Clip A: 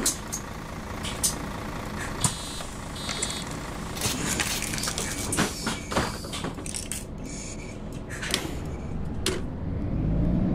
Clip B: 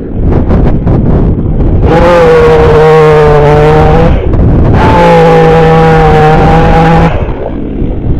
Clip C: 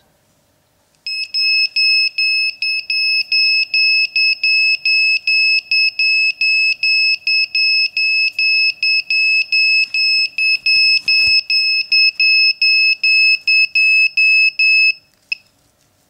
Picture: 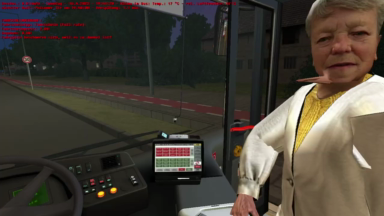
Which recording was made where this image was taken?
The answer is A